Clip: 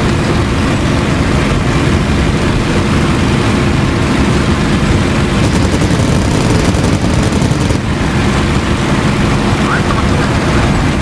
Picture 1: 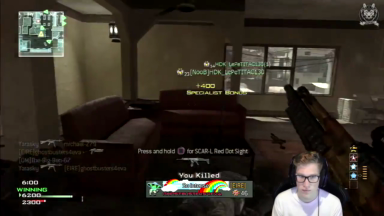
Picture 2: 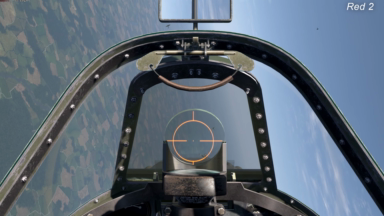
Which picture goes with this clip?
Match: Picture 2